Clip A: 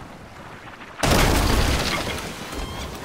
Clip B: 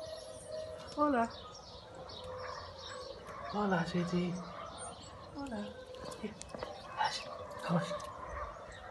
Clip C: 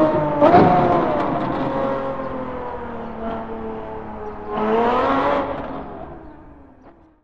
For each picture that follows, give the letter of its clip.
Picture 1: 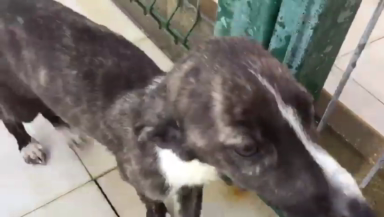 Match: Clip B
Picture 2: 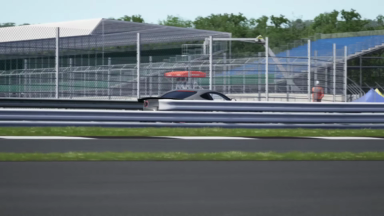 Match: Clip C